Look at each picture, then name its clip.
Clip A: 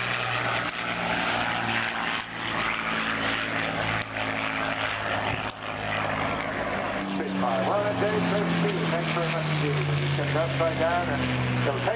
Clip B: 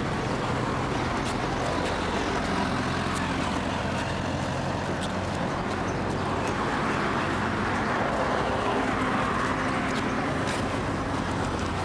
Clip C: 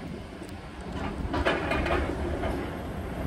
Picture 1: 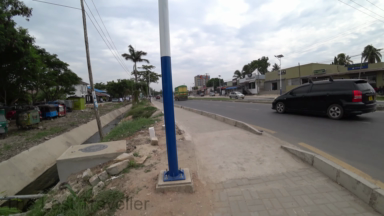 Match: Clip B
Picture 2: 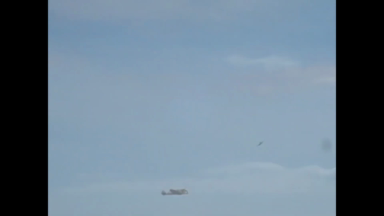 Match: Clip A